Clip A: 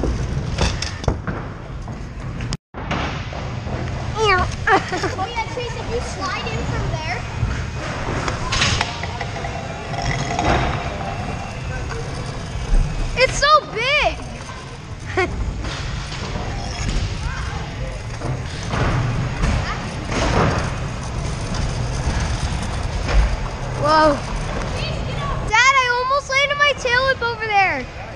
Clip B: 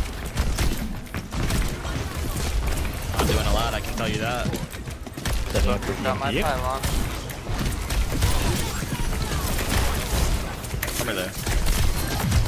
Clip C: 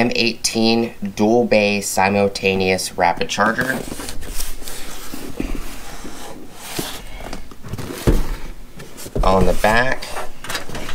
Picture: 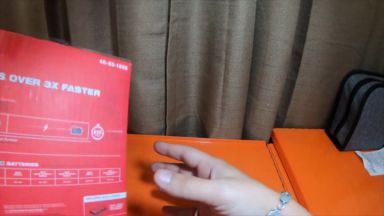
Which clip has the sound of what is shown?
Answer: C